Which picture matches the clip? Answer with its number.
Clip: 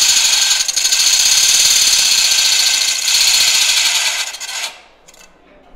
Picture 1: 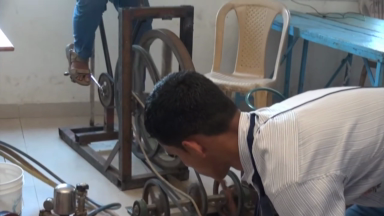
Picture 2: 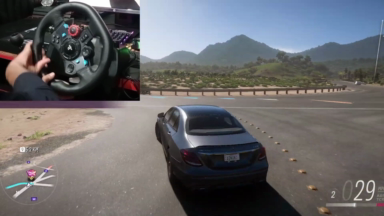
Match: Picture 1